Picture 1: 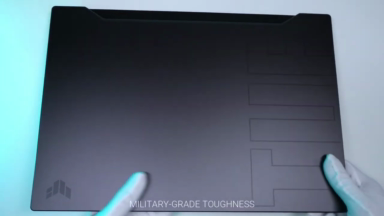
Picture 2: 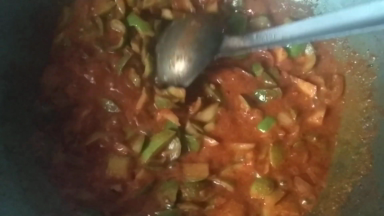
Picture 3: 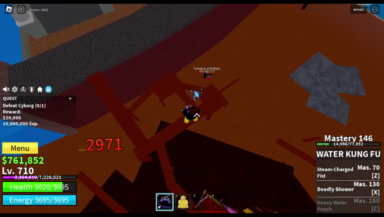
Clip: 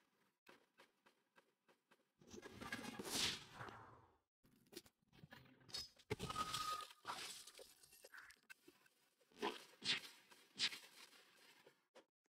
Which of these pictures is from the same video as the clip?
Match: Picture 3